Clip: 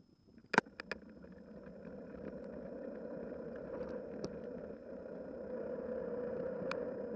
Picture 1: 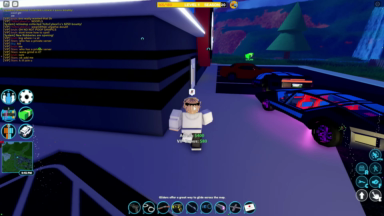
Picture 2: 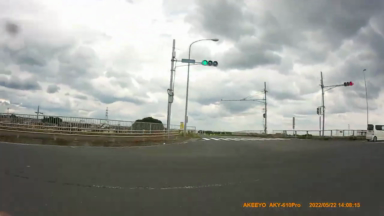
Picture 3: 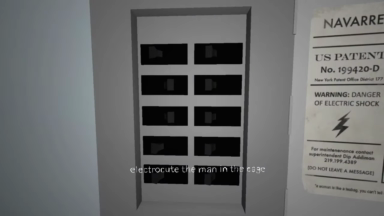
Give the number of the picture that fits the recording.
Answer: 2